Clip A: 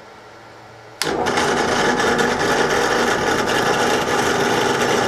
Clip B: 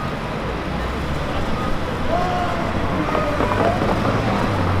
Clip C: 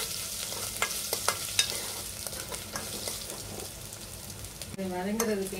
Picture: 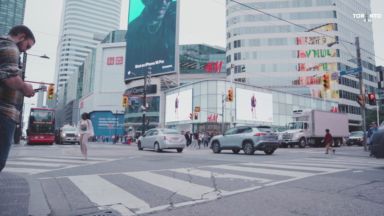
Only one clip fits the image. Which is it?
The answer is B